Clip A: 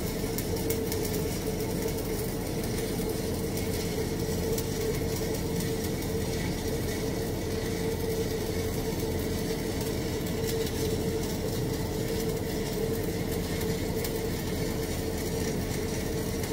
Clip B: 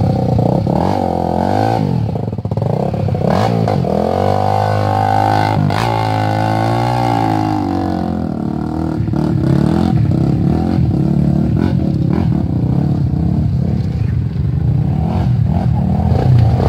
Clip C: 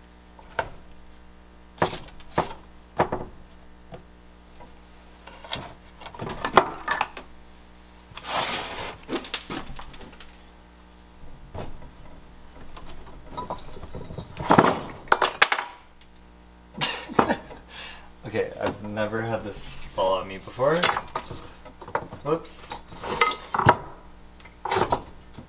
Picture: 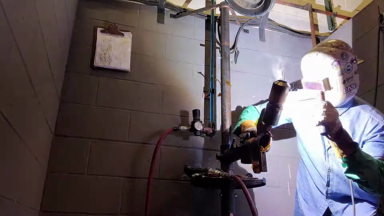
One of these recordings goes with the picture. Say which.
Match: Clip A